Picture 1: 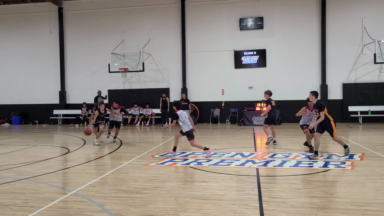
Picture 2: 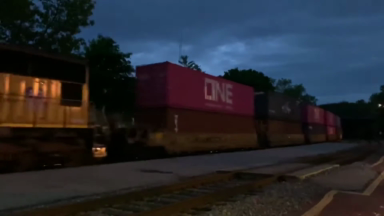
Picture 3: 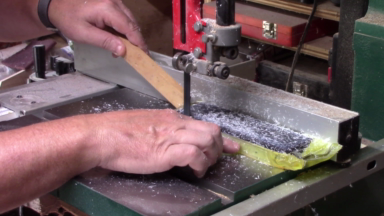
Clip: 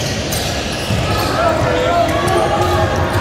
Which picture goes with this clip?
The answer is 1